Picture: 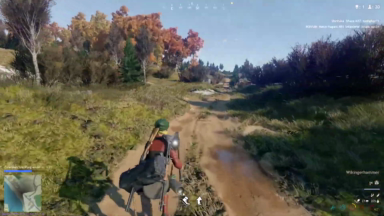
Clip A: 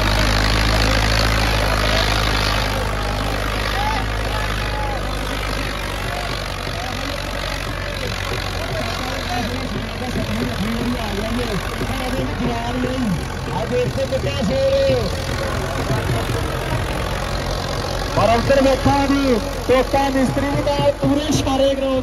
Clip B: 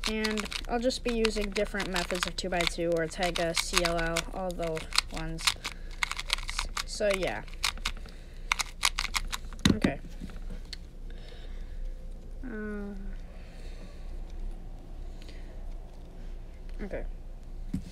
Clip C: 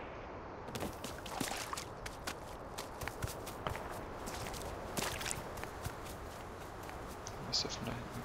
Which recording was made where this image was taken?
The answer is C